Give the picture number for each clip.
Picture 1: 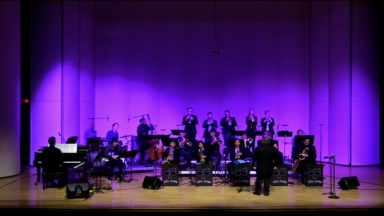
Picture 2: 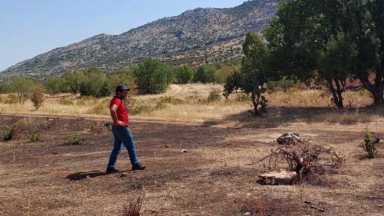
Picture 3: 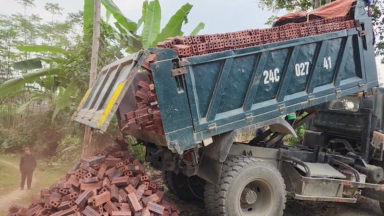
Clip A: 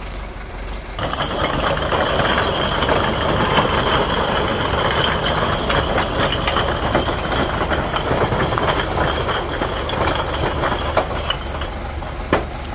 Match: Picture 3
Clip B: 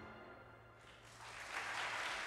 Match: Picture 1